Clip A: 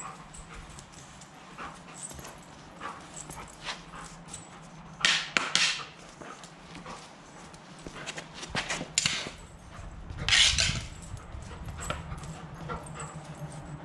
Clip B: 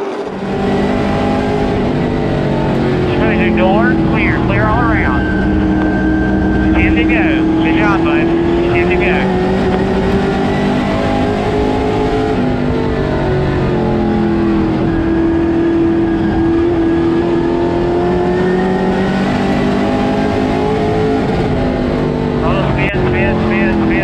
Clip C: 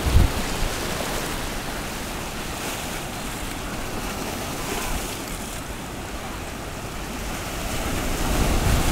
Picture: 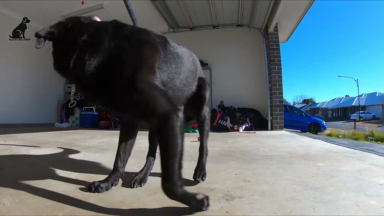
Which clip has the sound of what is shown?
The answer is A